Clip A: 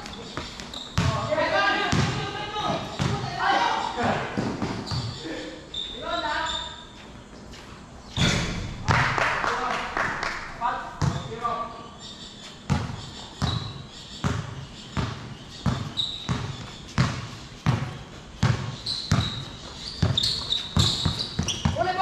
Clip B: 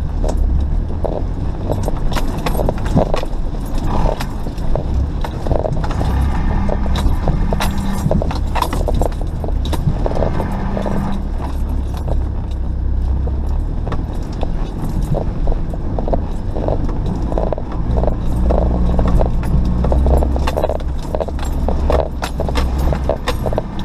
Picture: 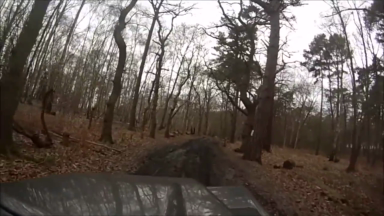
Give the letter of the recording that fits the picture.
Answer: B